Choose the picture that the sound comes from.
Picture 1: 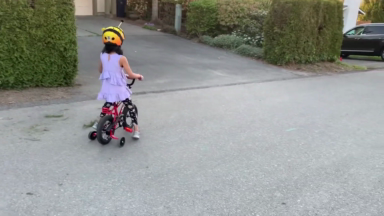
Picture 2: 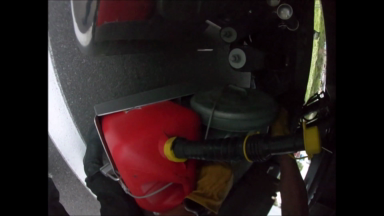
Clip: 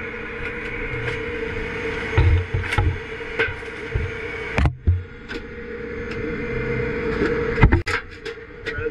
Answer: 2